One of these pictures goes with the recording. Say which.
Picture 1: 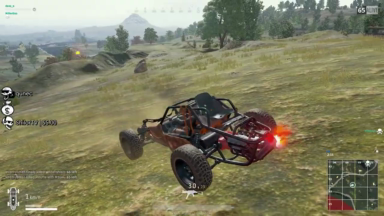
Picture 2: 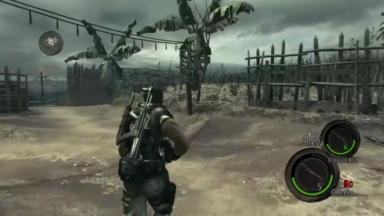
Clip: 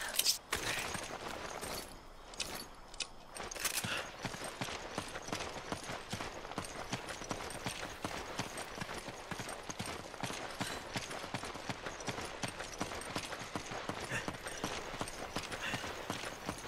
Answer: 2